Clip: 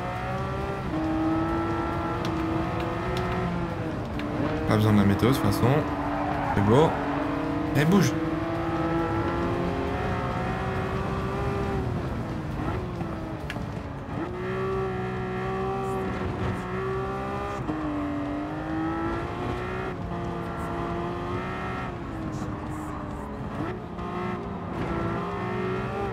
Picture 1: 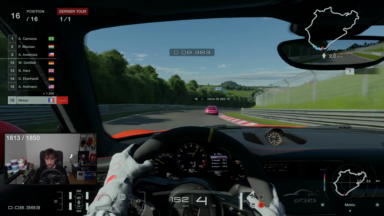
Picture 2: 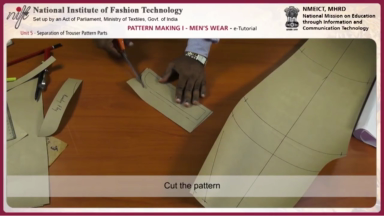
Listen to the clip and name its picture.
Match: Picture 1